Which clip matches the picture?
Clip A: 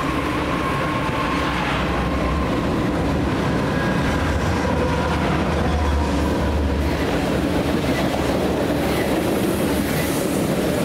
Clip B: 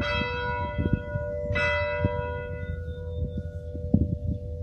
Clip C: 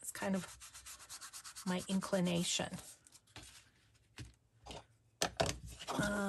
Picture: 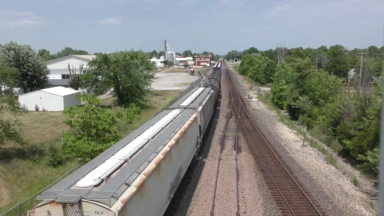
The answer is A